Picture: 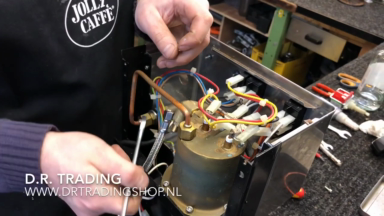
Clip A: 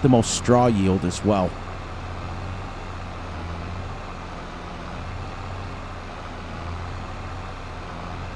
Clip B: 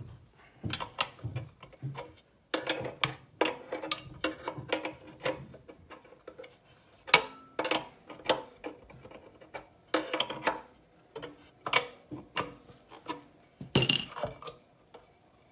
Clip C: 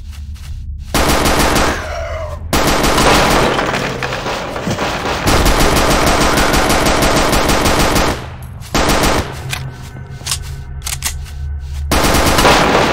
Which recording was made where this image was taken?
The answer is B